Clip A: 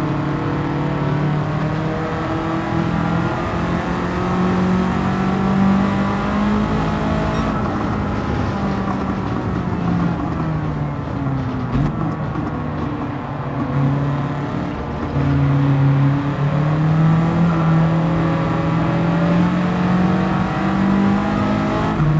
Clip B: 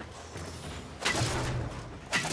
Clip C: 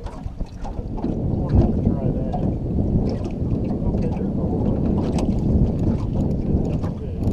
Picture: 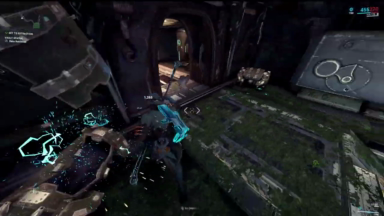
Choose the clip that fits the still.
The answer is B